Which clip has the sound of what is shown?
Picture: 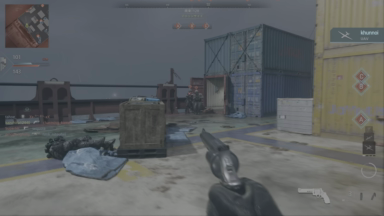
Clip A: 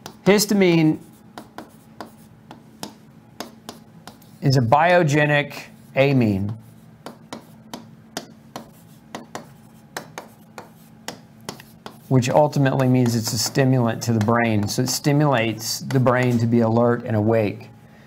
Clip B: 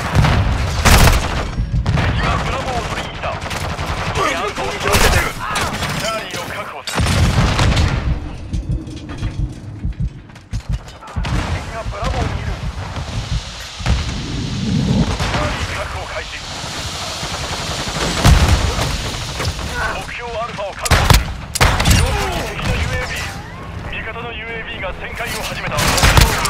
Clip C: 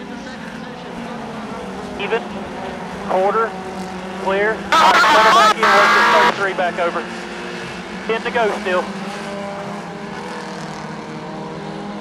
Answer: B